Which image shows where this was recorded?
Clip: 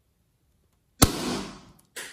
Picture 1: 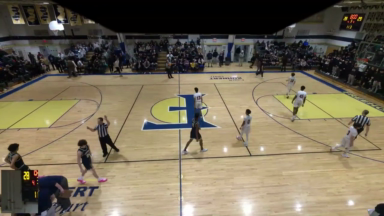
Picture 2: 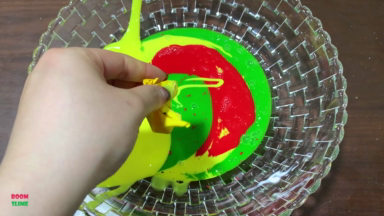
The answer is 2